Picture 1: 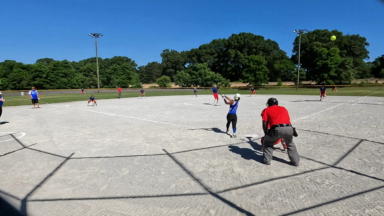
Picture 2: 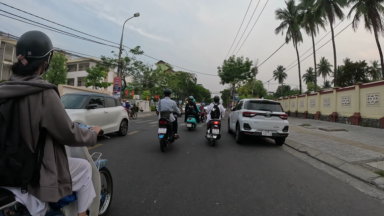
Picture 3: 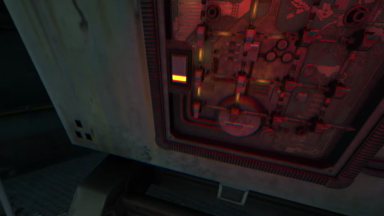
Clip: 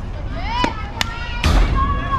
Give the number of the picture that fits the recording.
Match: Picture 1